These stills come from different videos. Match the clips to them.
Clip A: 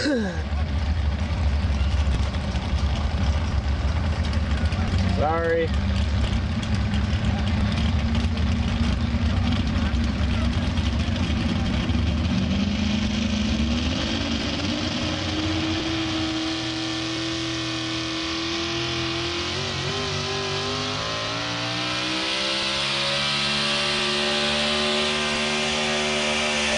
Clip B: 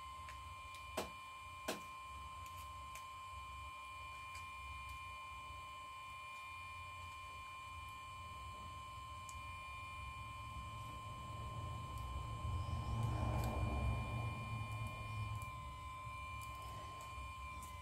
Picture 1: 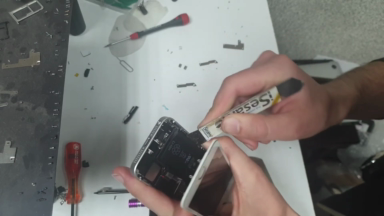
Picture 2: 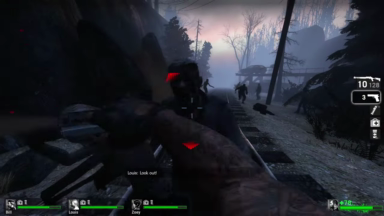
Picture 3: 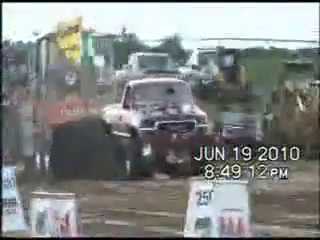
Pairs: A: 3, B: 1